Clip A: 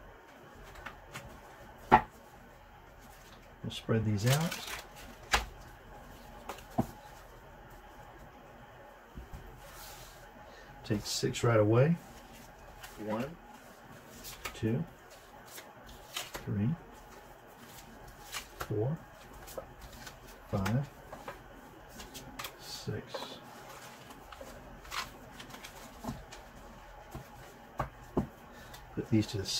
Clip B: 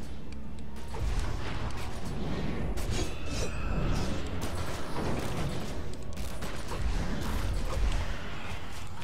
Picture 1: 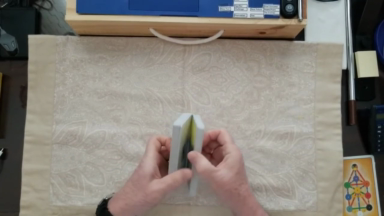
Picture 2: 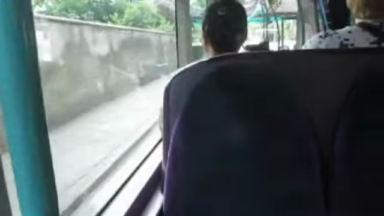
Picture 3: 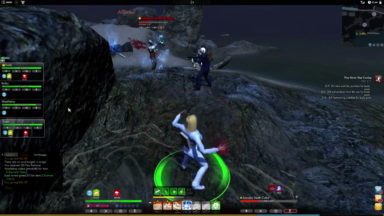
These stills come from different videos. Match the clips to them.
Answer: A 1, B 3